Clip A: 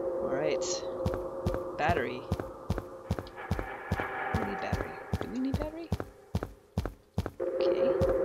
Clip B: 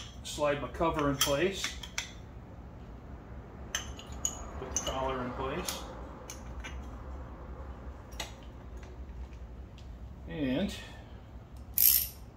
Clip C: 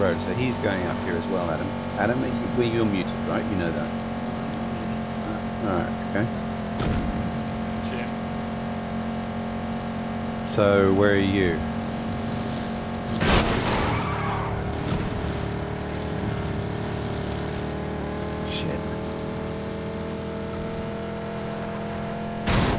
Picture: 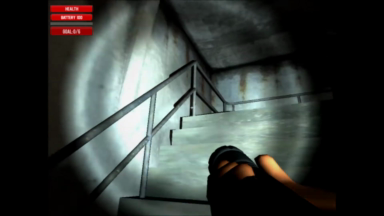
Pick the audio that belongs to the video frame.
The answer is A